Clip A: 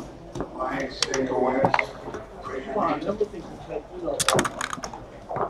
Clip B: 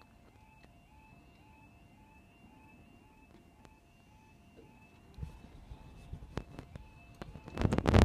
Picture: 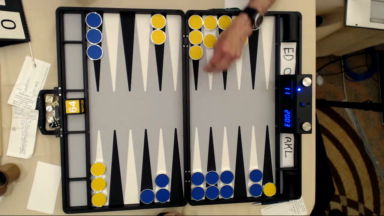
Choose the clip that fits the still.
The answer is A